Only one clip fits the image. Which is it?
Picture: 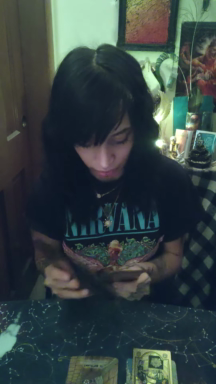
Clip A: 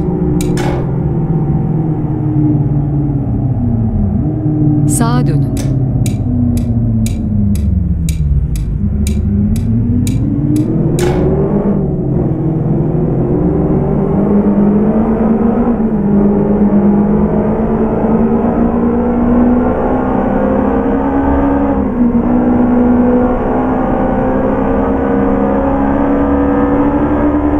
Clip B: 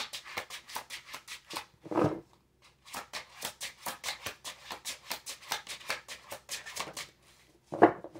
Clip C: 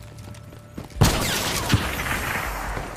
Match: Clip B